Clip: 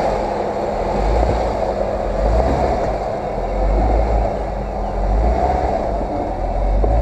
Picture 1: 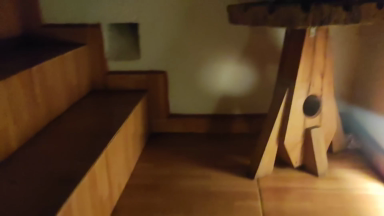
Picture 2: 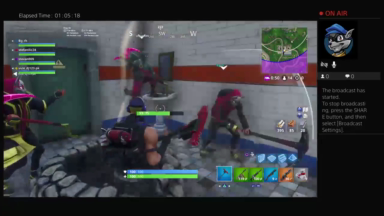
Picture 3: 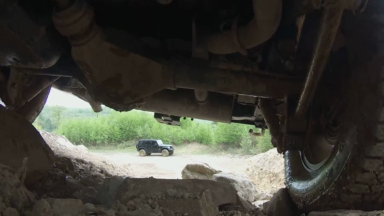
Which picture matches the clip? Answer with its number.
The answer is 3